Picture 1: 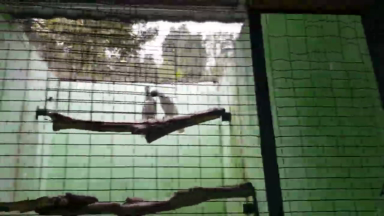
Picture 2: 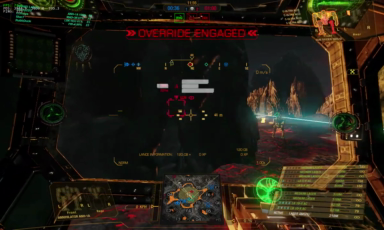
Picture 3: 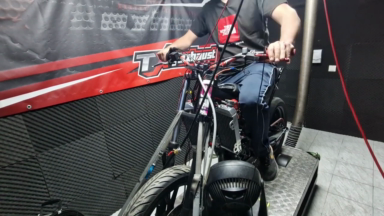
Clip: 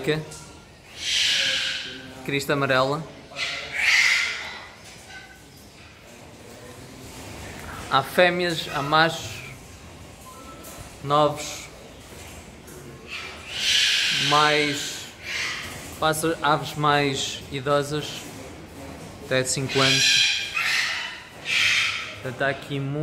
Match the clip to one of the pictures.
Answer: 1